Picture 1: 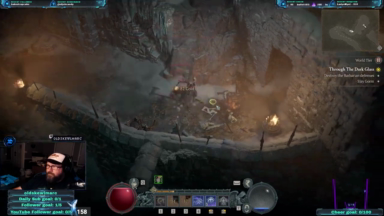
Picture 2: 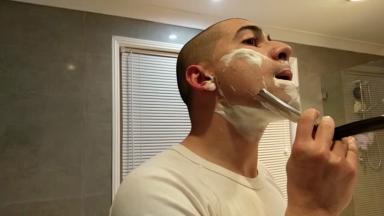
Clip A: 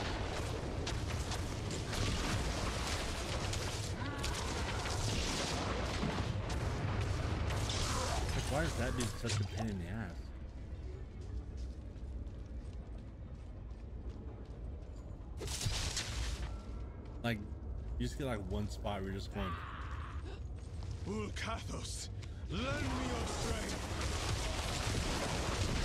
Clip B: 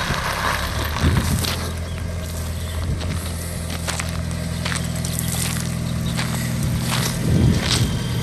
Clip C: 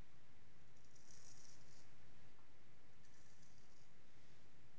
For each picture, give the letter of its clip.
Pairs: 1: A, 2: C